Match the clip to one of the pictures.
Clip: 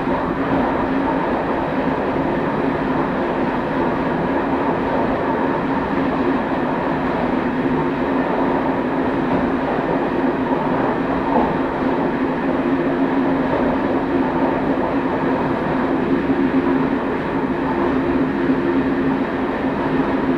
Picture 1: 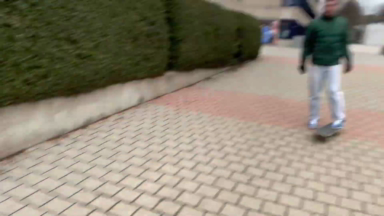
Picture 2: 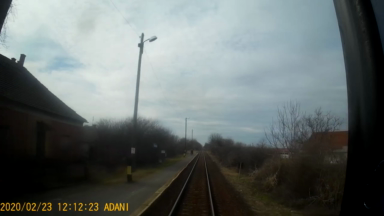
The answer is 2